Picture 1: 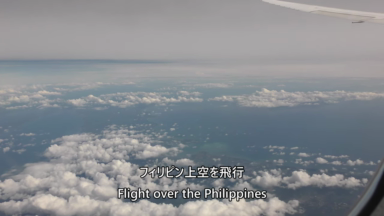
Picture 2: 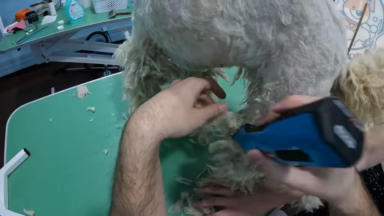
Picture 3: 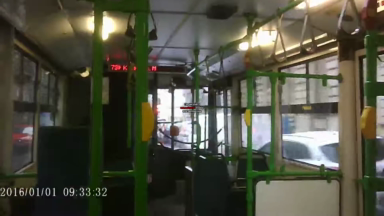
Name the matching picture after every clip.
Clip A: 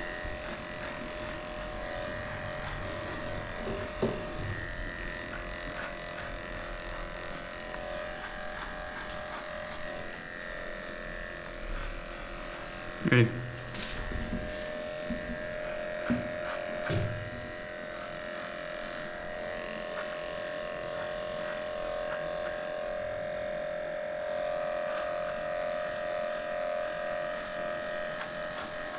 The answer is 2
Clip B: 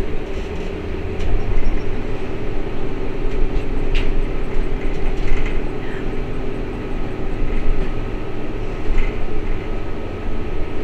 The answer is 3